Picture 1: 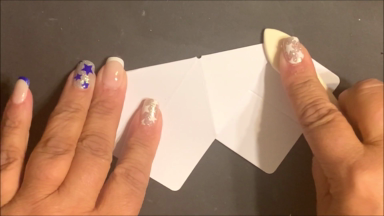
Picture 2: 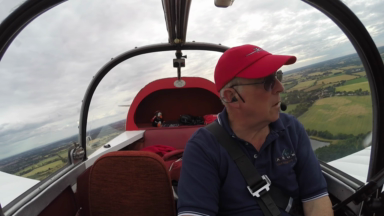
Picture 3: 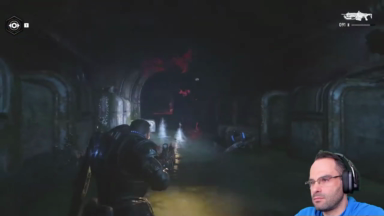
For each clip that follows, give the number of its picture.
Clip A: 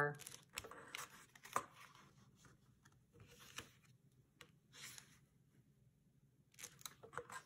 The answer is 1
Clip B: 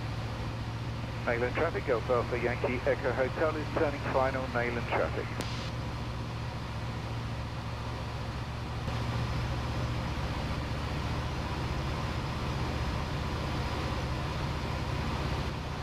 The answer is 2